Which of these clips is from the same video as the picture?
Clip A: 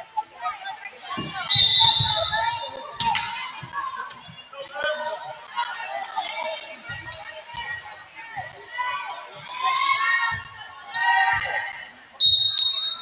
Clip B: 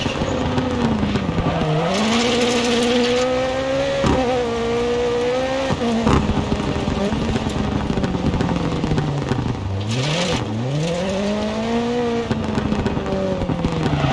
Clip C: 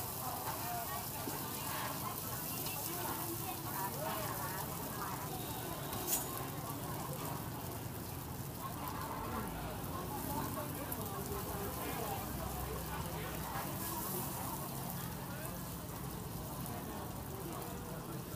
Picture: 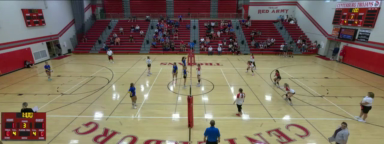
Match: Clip A